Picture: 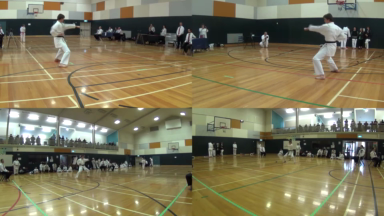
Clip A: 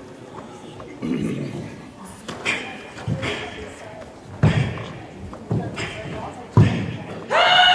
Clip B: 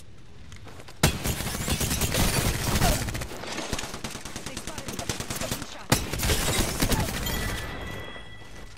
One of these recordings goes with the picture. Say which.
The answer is A